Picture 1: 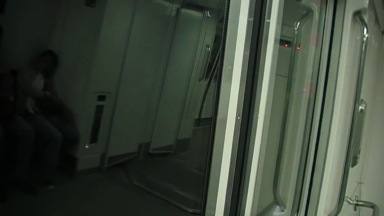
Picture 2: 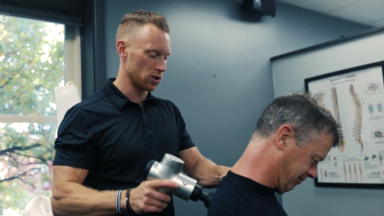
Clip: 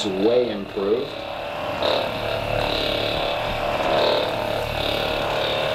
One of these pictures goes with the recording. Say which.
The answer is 2